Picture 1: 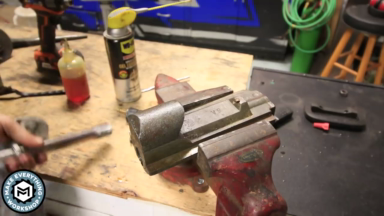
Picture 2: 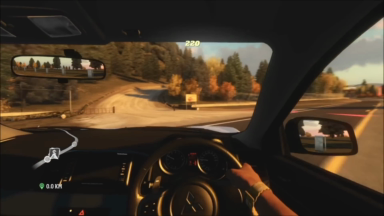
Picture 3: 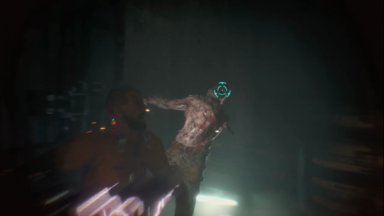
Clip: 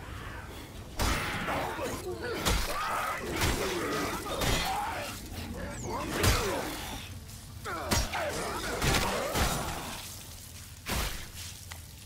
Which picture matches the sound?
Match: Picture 3